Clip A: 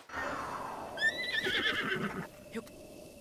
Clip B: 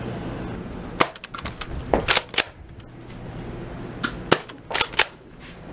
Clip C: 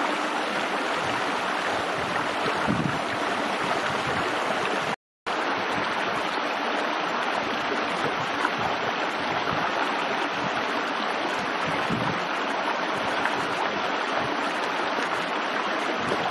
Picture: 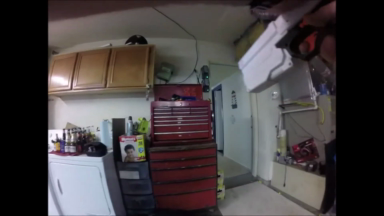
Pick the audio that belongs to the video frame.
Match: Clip B